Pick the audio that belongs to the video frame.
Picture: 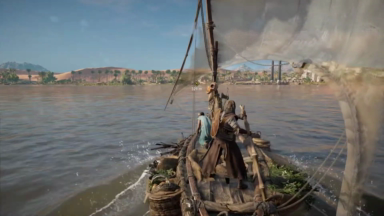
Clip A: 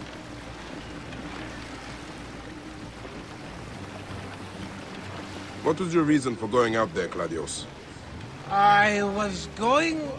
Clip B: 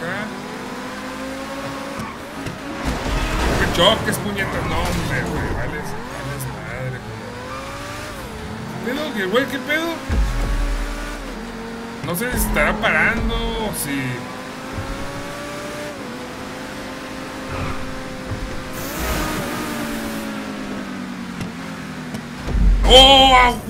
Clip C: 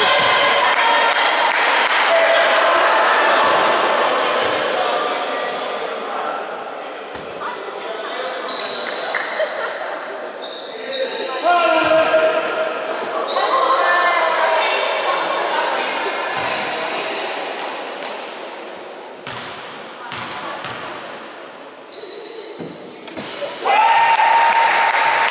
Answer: A